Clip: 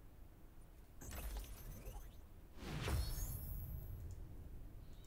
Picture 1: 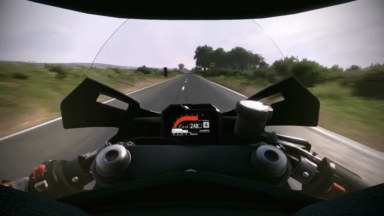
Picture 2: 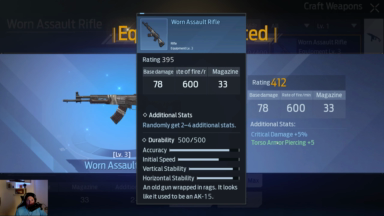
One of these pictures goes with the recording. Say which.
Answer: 2